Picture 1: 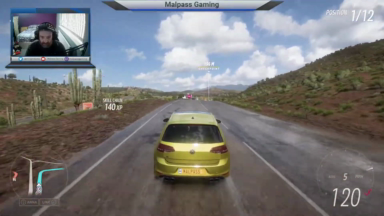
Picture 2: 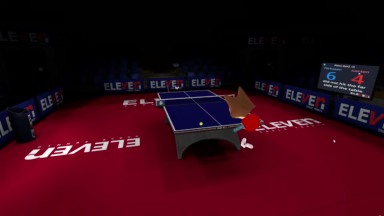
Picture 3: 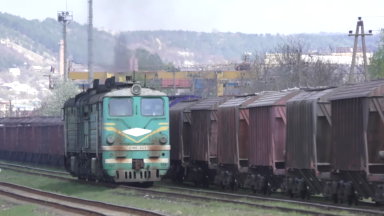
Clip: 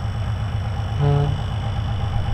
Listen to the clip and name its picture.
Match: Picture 3